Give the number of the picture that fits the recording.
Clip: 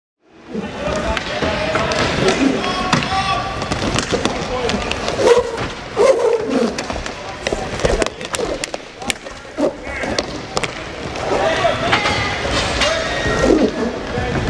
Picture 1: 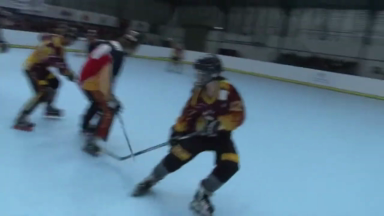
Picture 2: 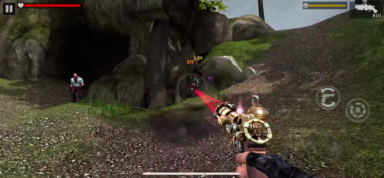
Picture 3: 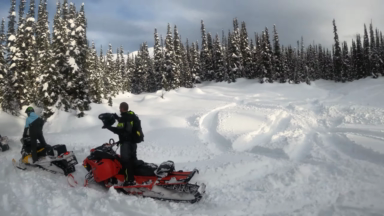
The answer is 1